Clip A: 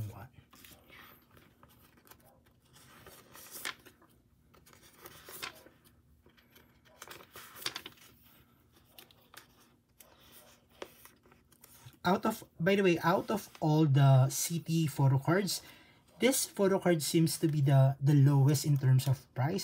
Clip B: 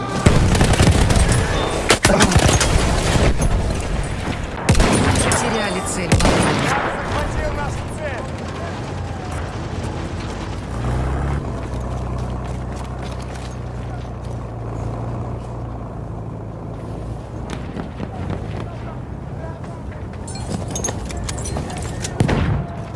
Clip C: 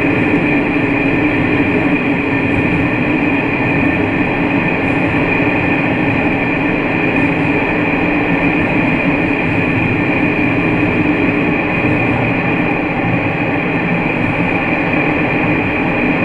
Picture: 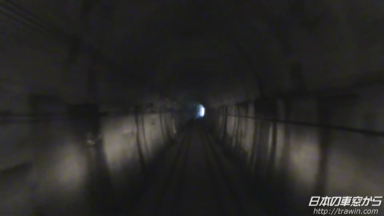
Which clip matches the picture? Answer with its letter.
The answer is C